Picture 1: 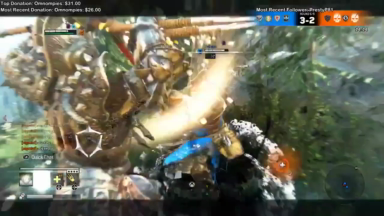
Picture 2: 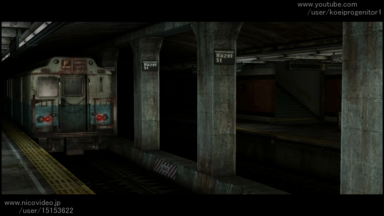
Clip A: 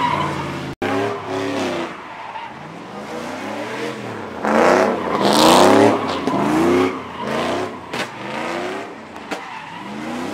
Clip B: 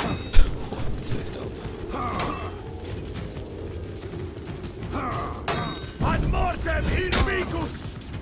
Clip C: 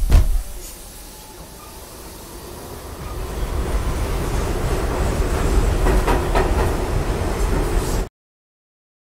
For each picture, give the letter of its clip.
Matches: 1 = B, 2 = C